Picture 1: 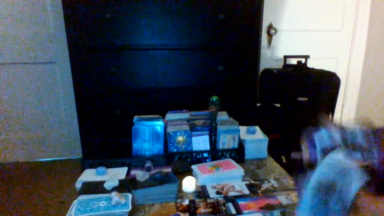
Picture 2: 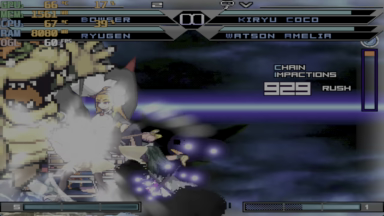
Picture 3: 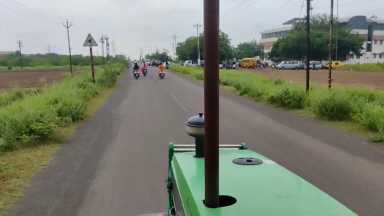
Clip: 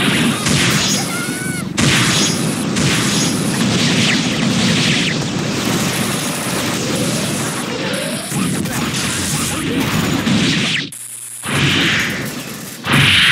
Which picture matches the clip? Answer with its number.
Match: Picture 2